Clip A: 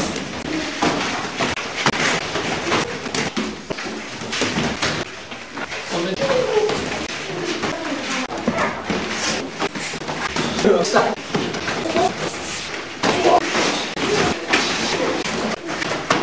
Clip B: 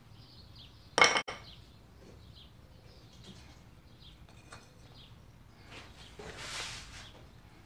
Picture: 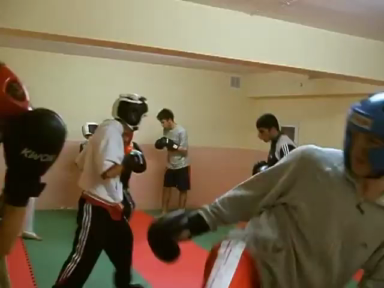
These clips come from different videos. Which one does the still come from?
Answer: A